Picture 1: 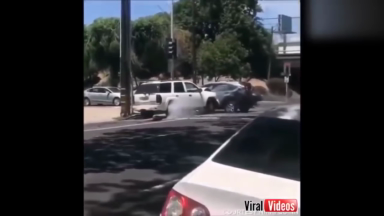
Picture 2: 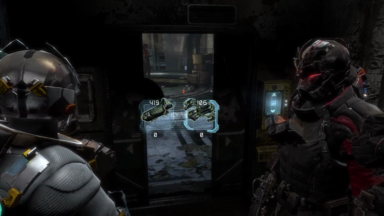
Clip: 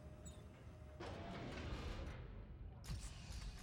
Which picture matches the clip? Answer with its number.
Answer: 2